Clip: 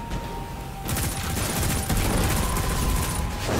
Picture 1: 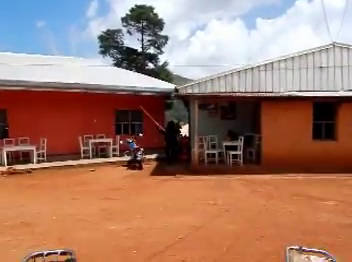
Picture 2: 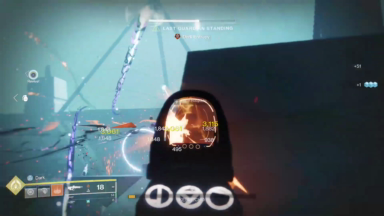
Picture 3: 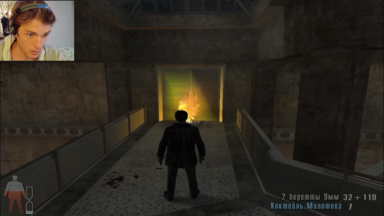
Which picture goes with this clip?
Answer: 2